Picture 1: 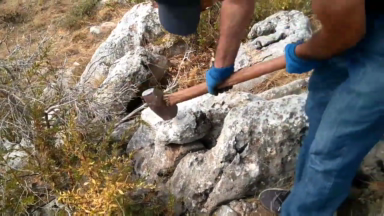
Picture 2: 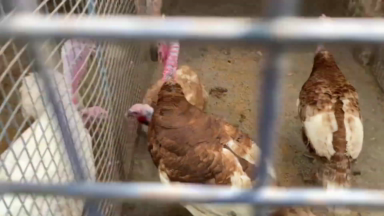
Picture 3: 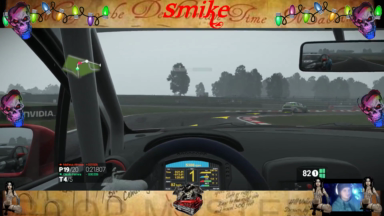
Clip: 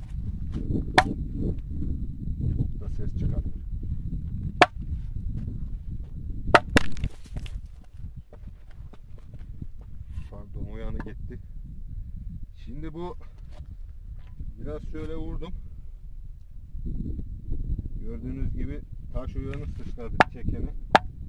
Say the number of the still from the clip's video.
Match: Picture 1